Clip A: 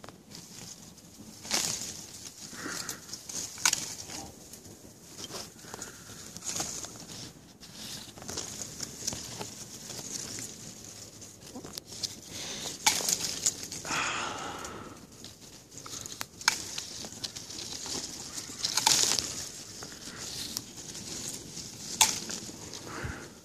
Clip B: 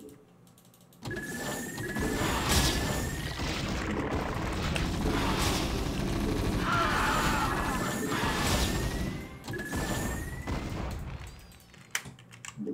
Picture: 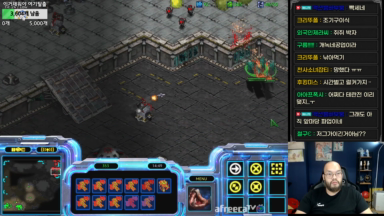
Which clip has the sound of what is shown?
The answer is B